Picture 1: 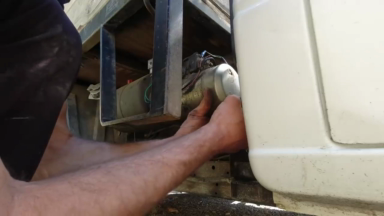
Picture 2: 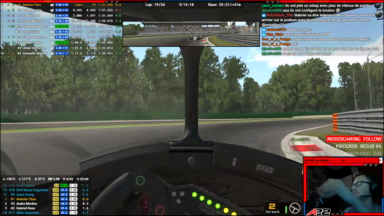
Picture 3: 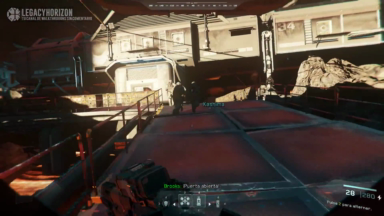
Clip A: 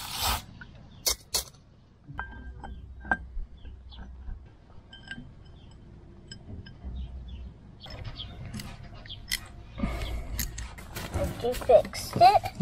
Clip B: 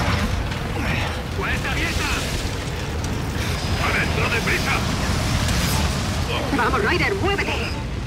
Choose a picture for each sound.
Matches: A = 1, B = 3